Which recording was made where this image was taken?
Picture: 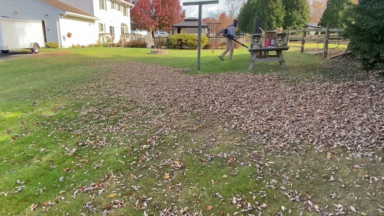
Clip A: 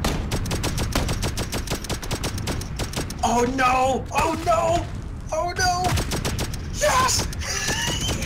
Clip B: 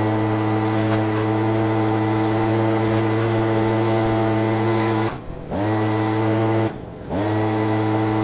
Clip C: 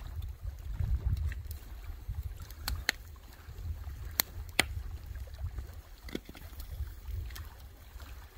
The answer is B